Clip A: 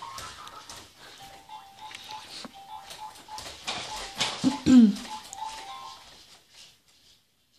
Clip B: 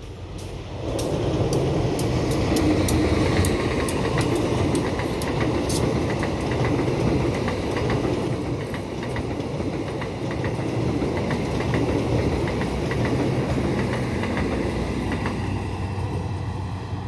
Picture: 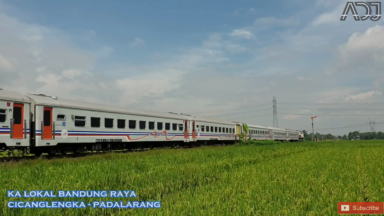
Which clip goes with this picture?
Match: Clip B